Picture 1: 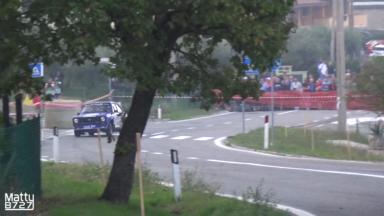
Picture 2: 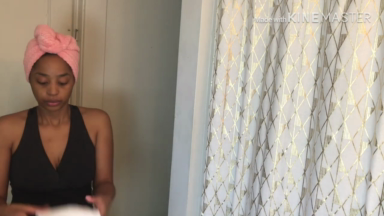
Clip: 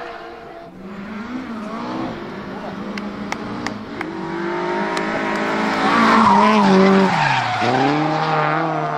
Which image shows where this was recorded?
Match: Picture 1